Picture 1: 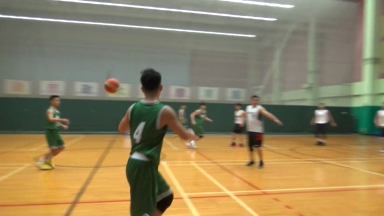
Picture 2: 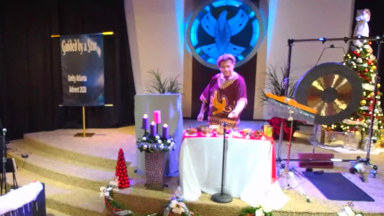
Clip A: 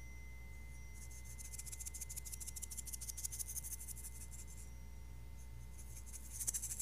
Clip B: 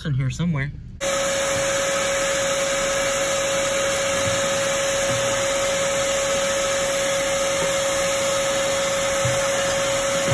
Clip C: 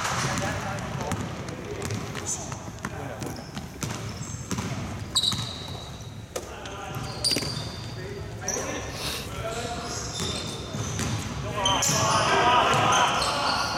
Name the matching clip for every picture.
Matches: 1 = C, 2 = A